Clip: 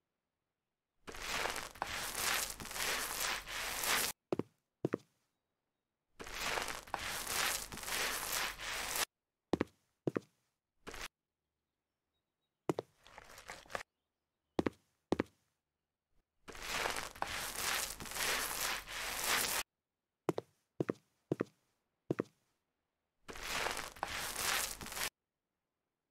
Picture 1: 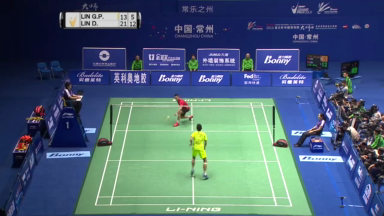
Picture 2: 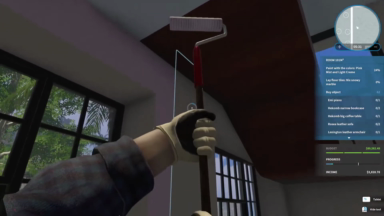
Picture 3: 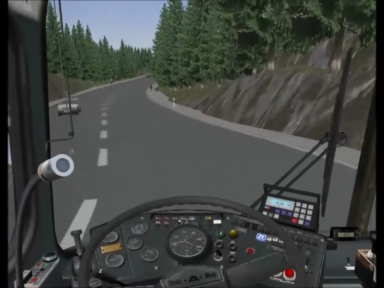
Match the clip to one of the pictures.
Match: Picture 2